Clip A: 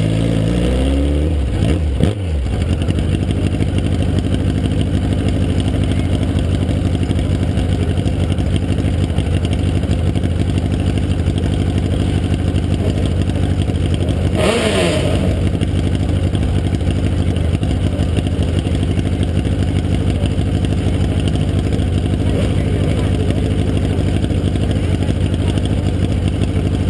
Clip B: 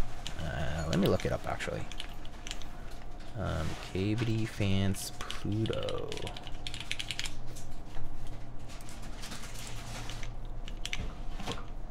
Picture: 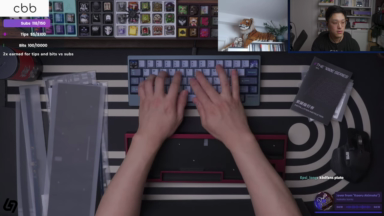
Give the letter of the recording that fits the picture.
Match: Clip B